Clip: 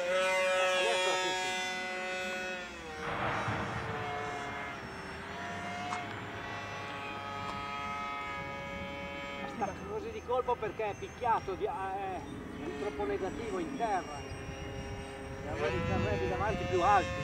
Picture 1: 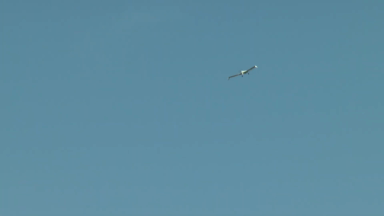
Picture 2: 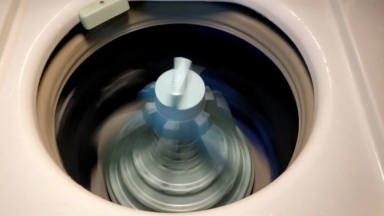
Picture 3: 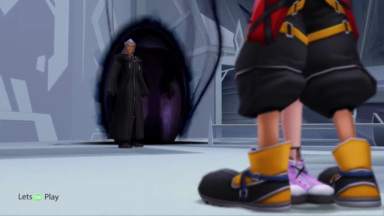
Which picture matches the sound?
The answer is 1